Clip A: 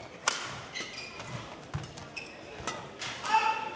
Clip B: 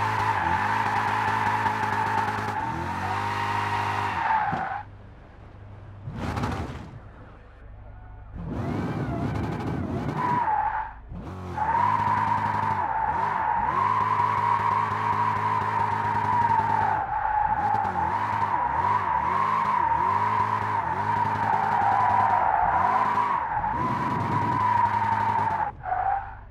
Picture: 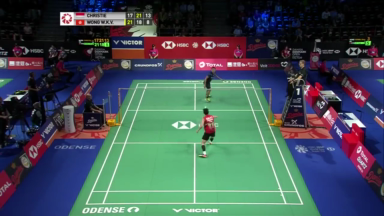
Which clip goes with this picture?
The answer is A